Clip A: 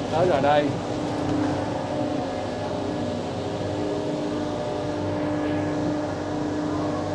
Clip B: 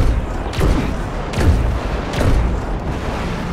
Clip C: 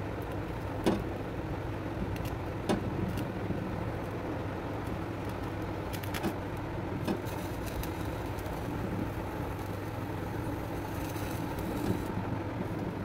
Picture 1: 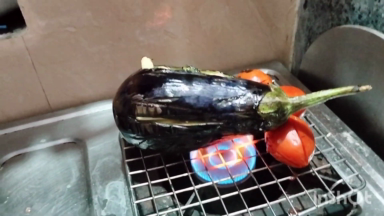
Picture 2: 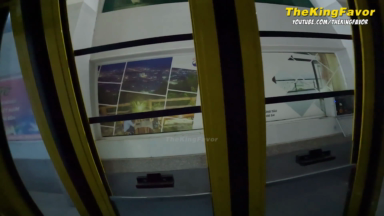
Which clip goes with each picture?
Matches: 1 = C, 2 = A